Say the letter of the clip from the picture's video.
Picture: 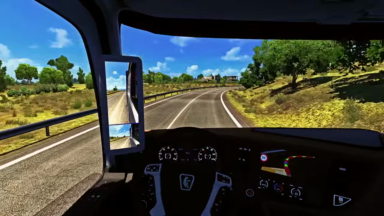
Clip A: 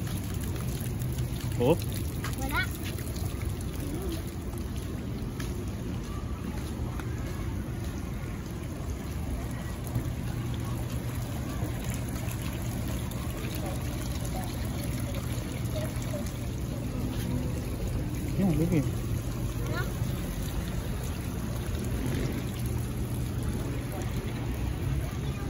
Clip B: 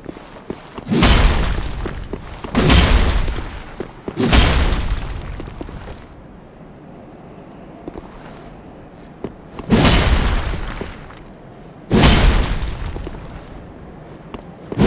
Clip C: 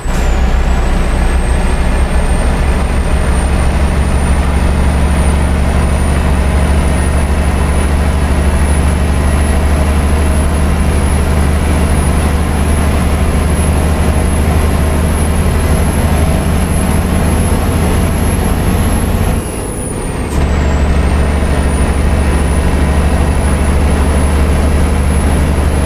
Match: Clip C